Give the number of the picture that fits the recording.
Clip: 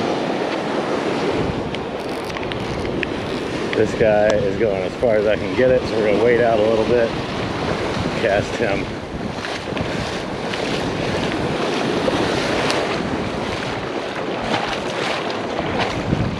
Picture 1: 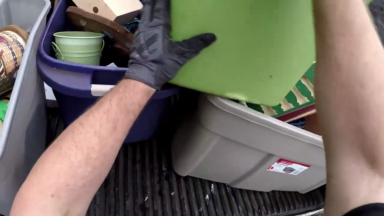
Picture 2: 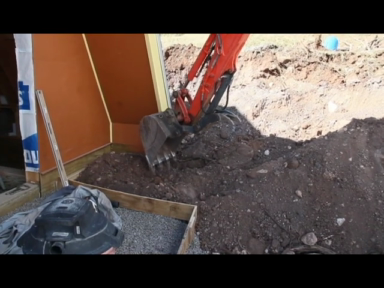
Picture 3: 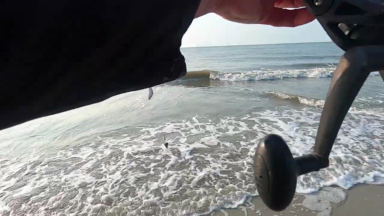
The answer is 3